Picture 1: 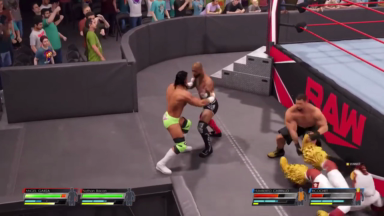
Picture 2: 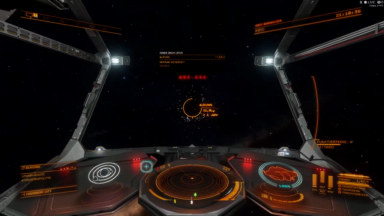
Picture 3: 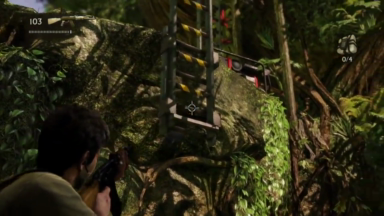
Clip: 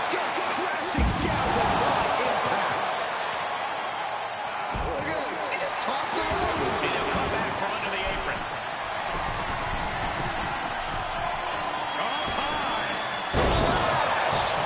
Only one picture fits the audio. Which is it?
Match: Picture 1